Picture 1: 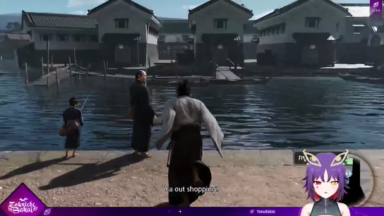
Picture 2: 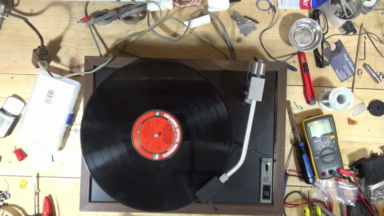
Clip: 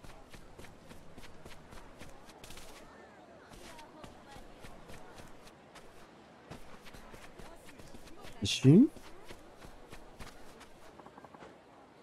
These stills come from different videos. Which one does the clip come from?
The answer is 1